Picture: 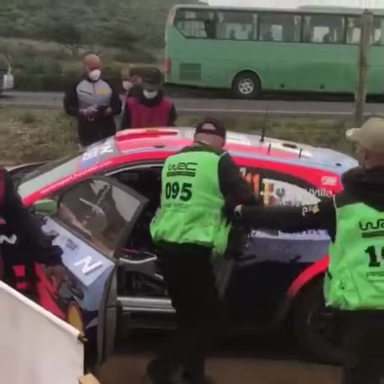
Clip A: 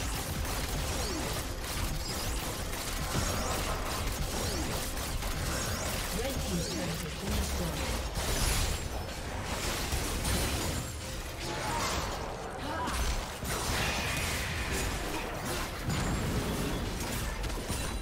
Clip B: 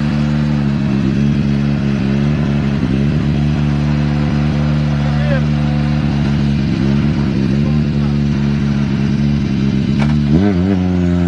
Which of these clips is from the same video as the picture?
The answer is B